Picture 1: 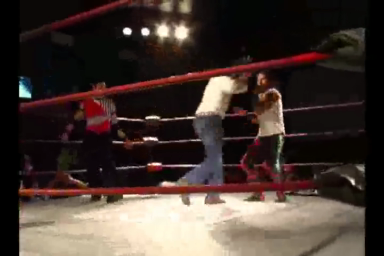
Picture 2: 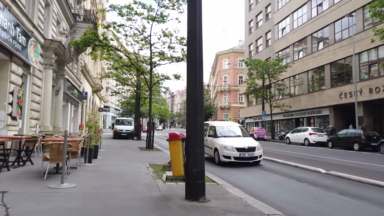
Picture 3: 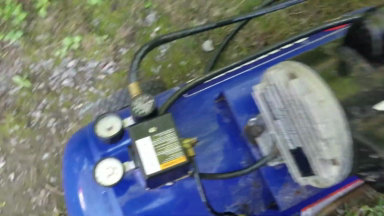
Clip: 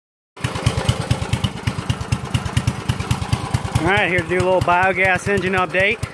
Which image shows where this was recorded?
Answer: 3